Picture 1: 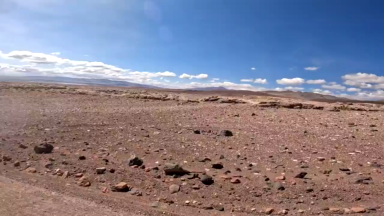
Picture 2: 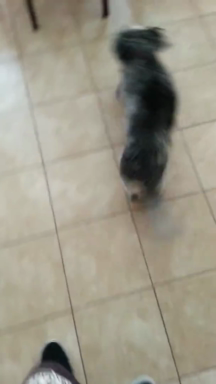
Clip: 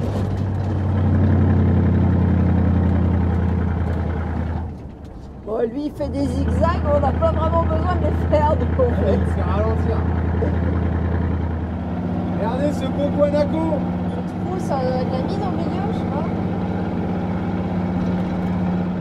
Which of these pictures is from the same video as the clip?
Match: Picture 1